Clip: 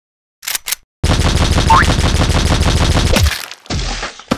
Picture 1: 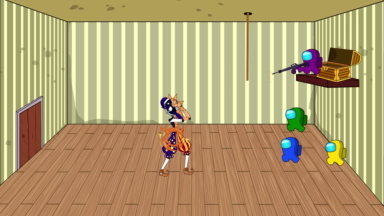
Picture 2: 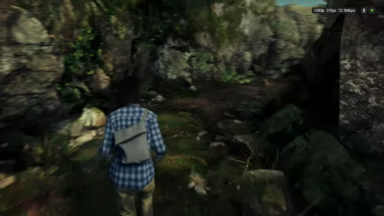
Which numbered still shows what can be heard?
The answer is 1